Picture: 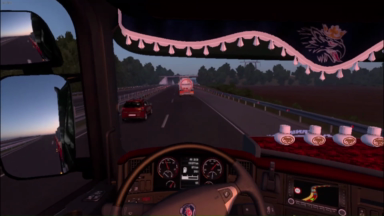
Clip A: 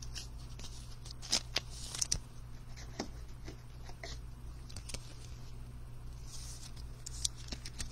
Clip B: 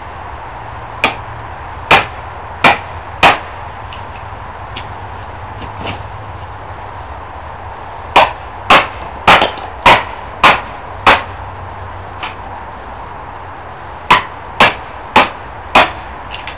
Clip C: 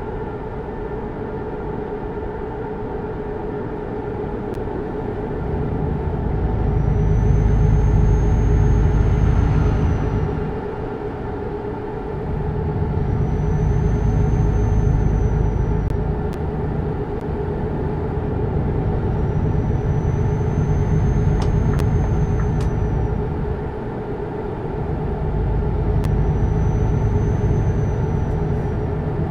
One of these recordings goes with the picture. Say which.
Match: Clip C